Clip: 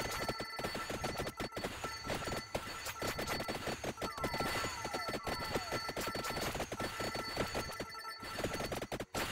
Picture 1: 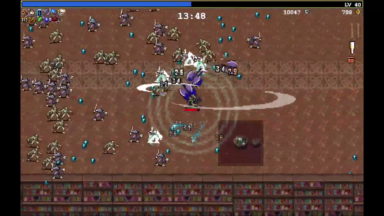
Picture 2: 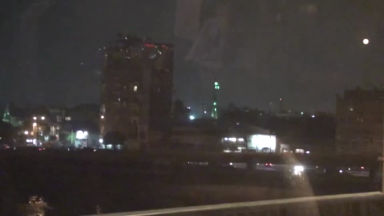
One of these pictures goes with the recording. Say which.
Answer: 1